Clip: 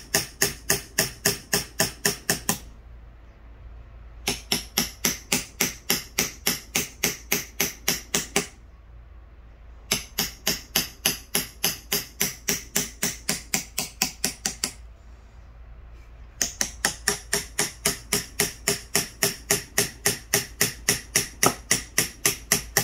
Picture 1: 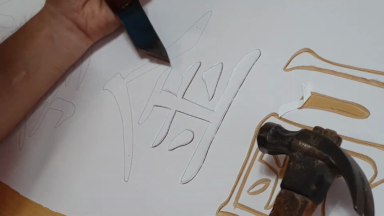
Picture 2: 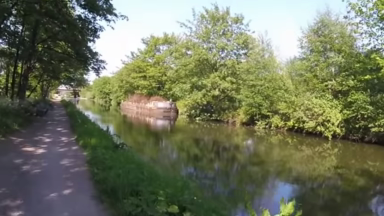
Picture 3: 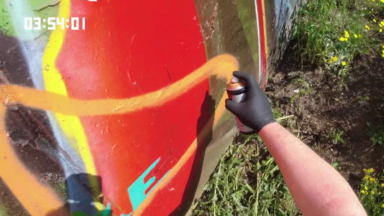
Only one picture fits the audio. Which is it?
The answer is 1